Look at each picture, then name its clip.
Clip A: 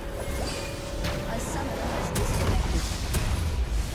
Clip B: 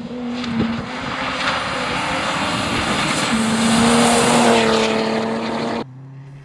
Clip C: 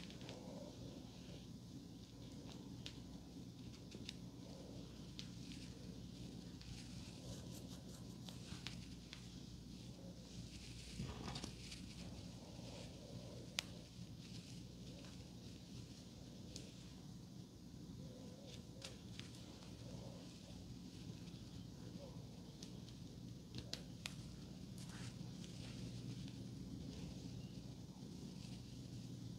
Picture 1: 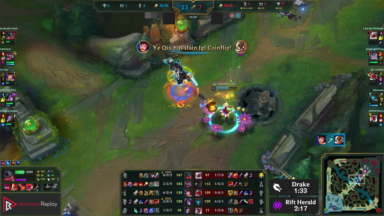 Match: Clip A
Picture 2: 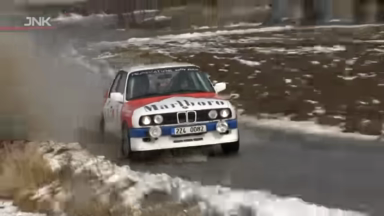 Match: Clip B